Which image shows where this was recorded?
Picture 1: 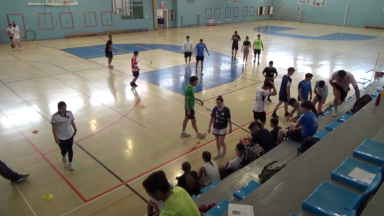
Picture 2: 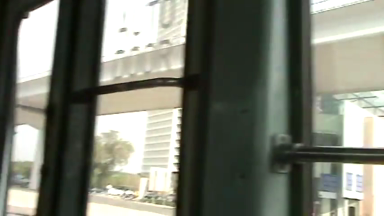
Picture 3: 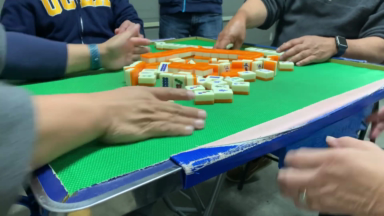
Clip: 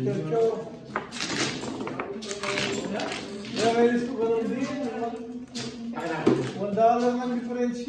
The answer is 3